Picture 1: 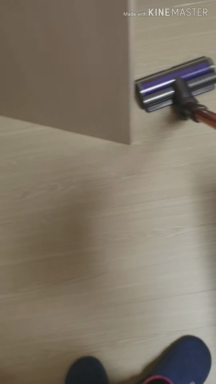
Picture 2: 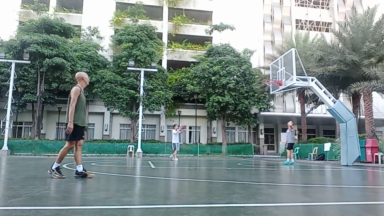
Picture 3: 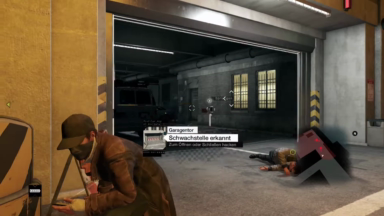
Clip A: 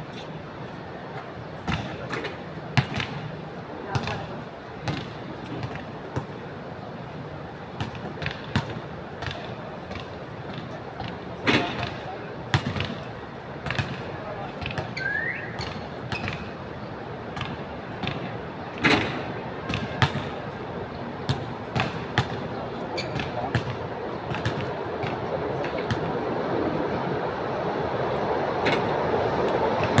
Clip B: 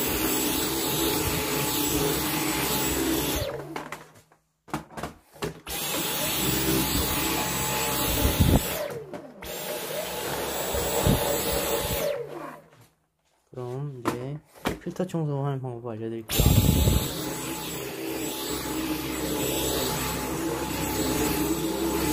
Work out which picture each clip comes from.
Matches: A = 2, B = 1